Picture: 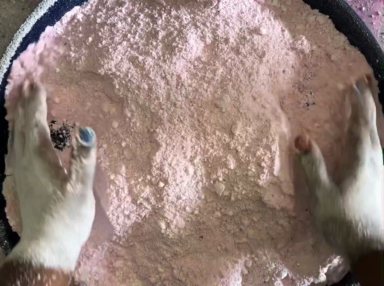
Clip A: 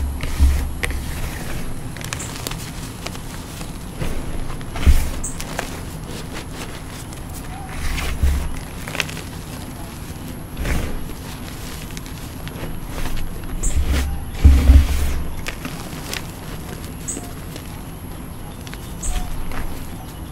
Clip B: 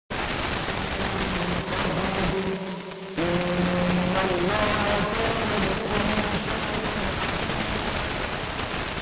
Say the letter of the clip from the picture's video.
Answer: A